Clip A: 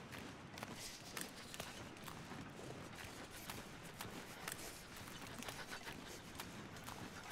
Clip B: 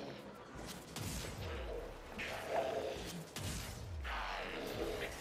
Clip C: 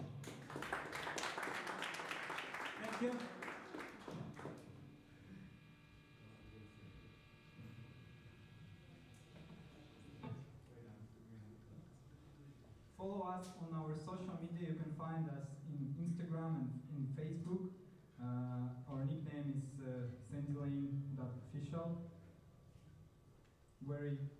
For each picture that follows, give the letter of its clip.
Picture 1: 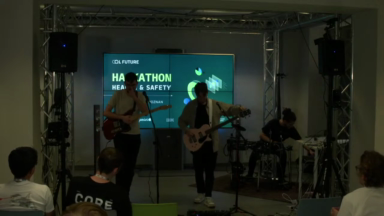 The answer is C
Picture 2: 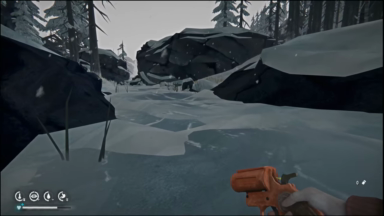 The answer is A